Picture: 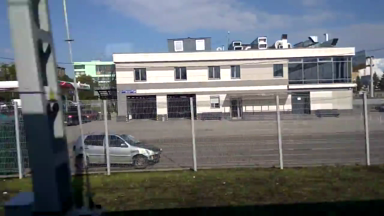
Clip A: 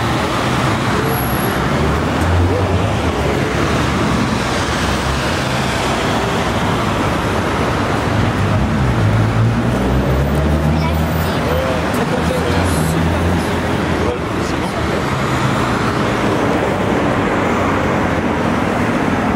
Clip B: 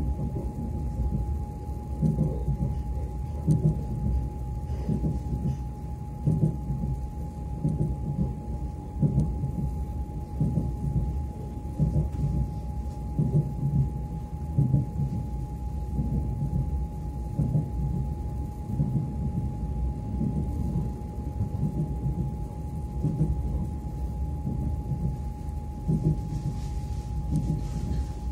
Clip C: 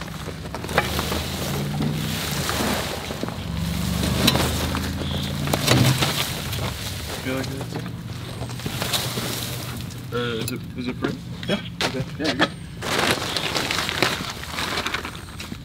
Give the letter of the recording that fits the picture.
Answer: B